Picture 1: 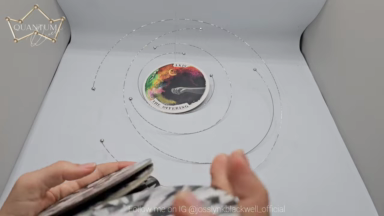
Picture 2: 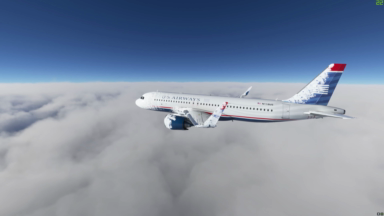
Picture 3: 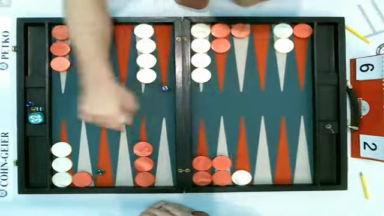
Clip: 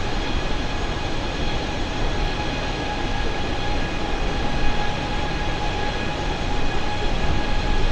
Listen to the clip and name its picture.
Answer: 2